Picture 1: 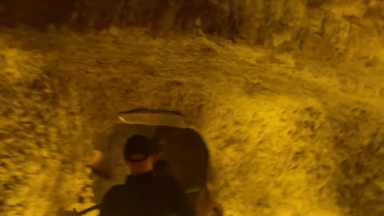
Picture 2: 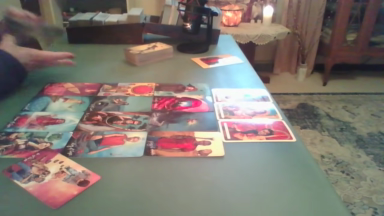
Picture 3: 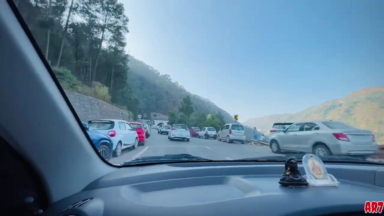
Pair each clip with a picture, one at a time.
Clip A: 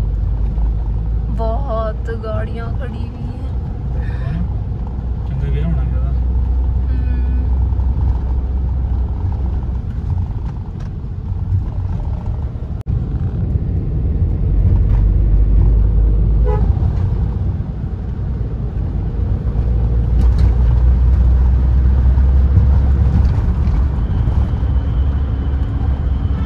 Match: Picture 3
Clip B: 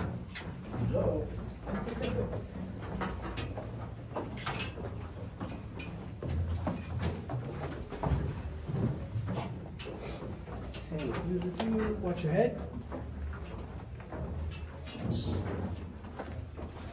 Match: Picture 1